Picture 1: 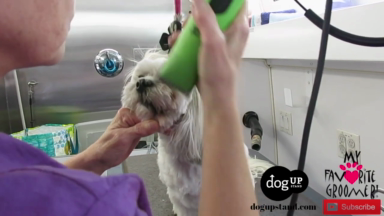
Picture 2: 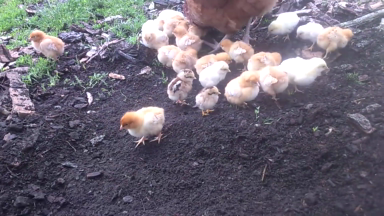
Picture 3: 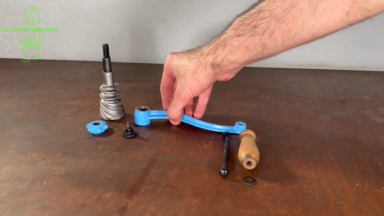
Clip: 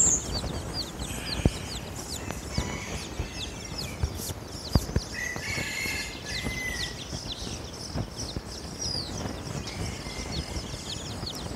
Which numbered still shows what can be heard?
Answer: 2